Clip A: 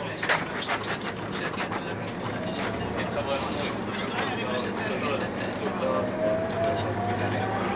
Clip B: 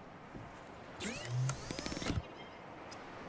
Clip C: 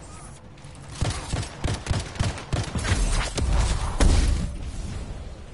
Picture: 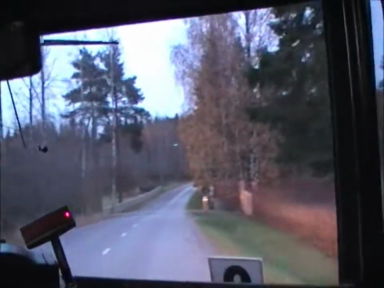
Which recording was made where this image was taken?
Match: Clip A